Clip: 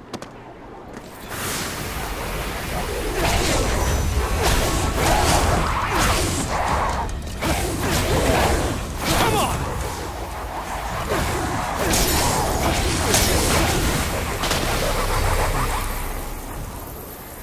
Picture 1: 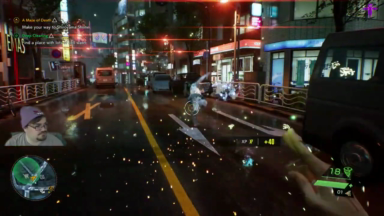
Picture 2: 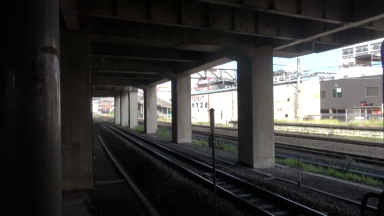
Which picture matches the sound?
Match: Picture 1